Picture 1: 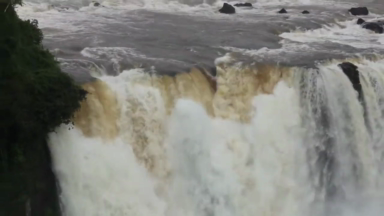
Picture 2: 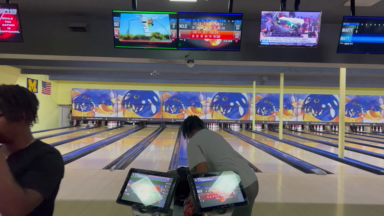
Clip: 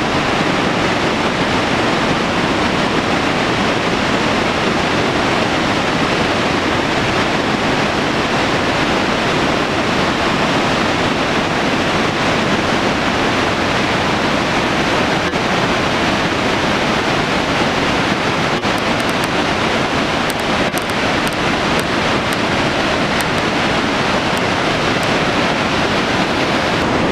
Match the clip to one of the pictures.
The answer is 1